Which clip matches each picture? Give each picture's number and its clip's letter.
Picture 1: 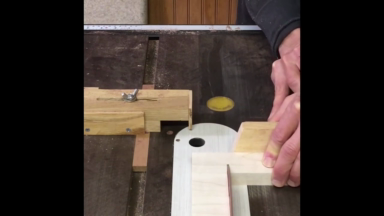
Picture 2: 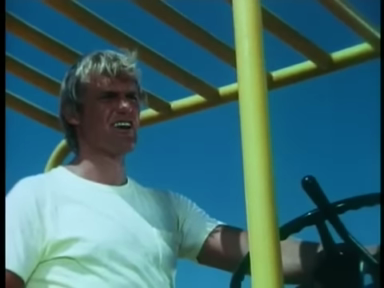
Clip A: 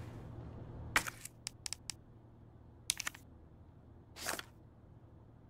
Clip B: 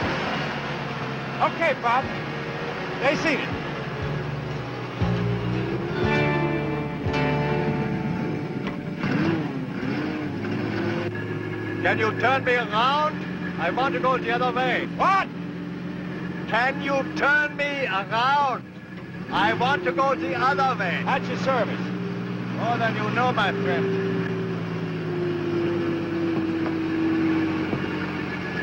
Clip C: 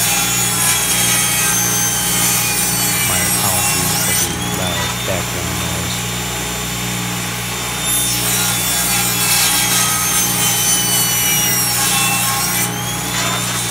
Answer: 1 C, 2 B